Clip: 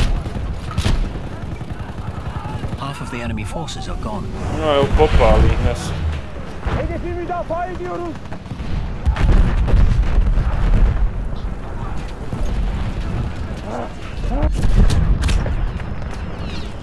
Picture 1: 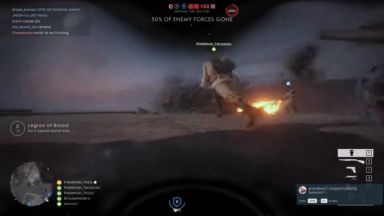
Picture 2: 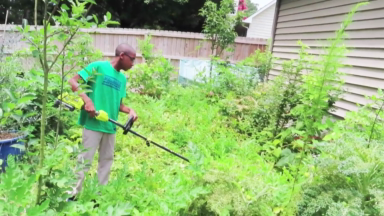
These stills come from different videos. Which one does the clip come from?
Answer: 1